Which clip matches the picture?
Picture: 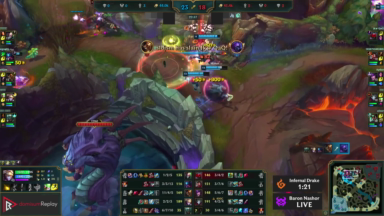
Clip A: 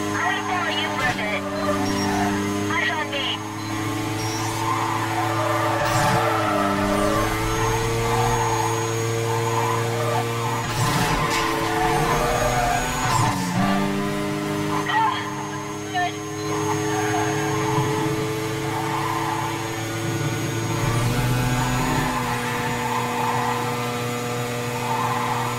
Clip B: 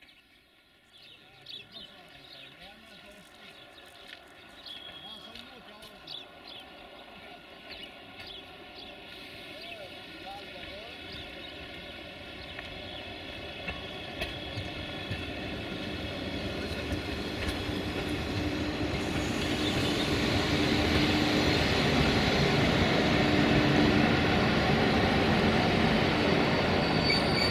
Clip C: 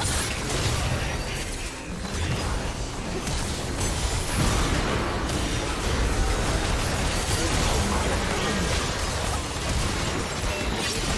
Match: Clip C